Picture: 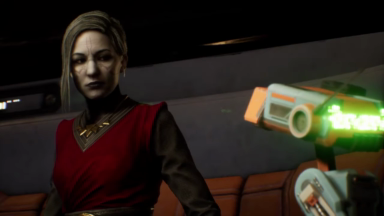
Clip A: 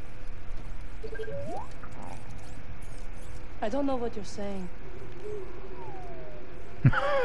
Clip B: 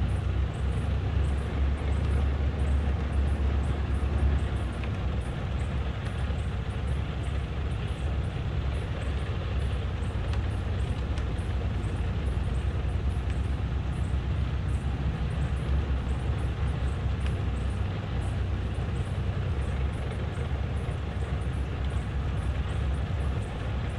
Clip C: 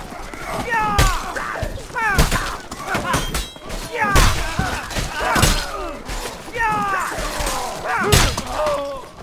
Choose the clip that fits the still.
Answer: A